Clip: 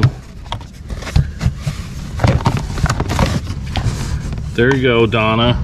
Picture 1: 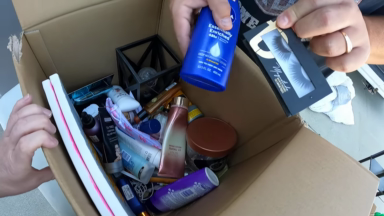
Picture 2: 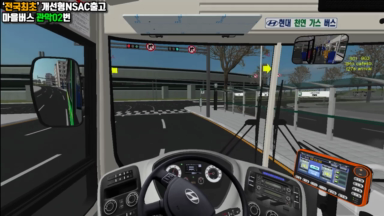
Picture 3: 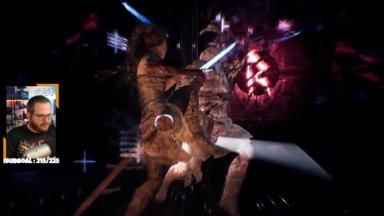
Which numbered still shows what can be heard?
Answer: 1